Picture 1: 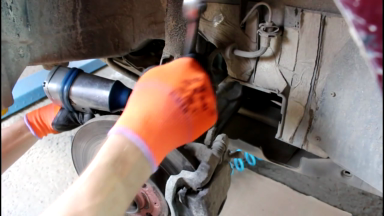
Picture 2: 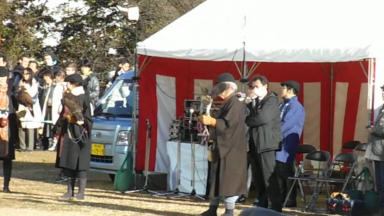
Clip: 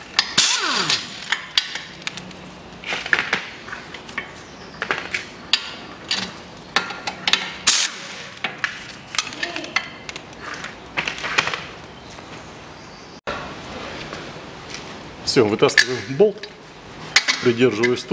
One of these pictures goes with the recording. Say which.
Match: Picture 1